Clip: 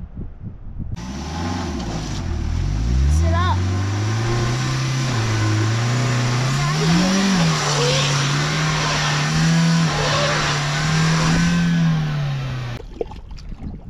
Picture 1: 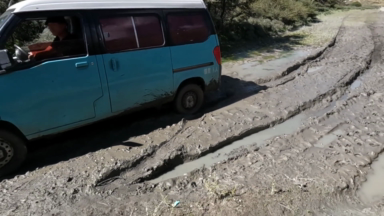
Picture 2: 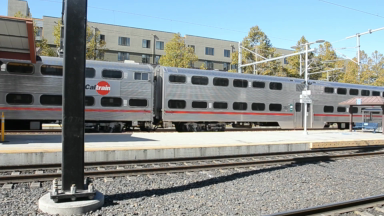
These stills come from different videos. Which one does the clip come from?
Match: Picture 1